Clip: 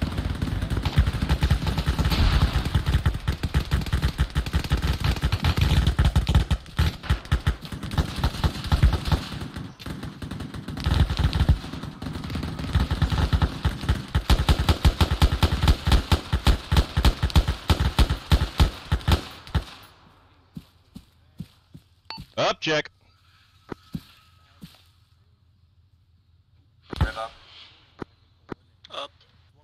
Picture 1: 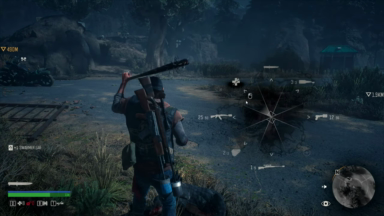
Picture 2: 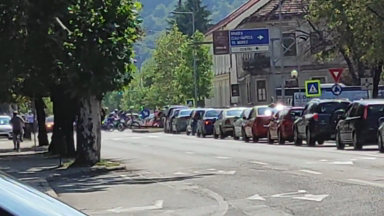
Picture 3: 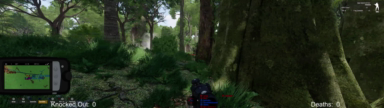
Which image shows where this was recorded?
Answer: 3